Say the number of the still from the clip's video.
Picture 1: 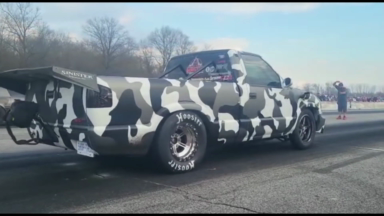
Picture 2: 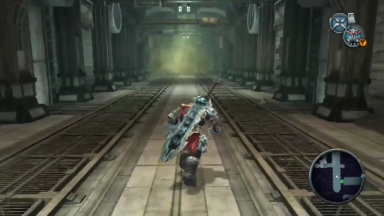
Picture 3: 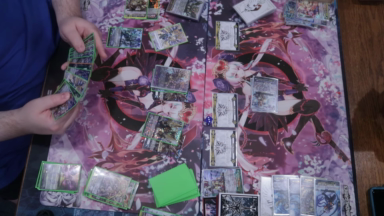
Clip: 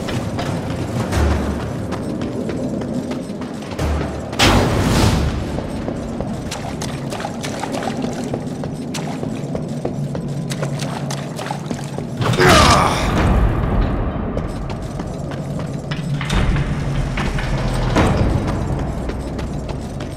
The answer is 2